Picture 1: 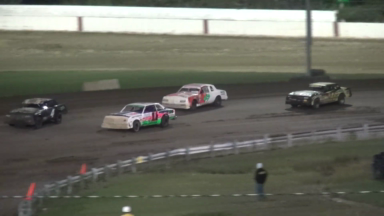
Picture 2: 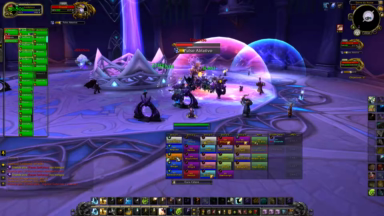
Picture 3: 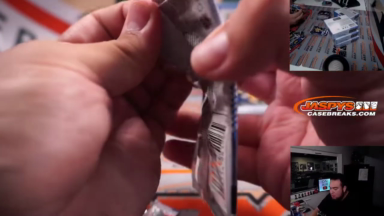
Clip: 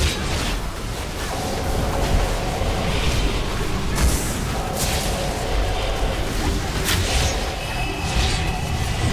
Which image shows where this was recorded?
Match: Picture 2